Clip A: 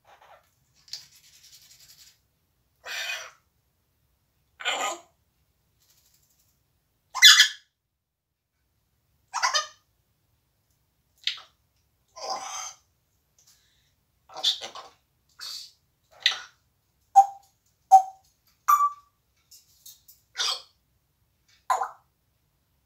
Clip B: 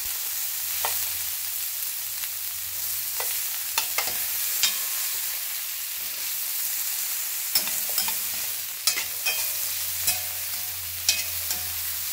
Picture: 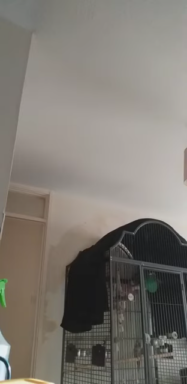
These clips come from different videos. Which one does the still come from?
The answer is A